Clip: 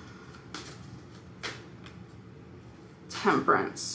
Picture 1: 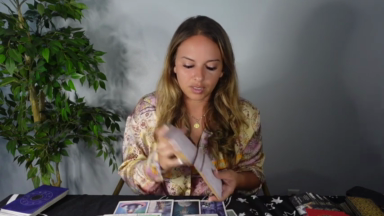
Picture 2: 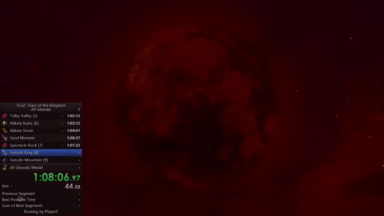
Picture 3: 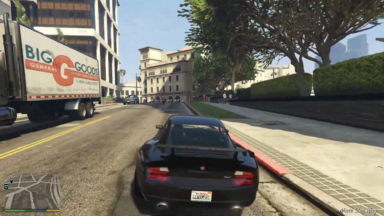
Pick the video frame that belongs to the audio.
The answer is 1